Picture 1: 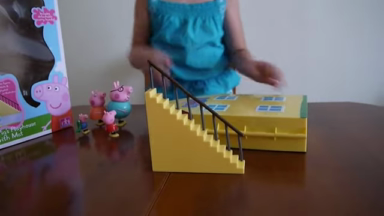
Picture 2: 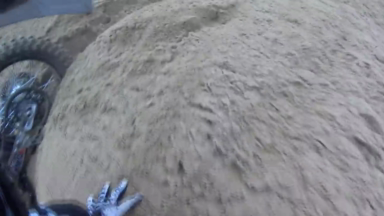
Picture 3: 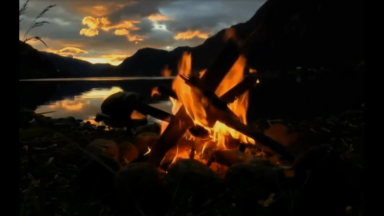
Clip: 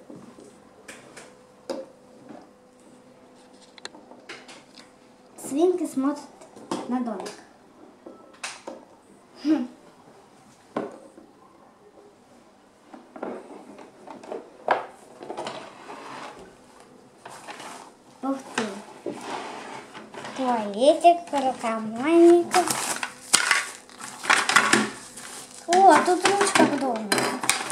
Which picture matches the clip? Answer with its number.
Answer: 1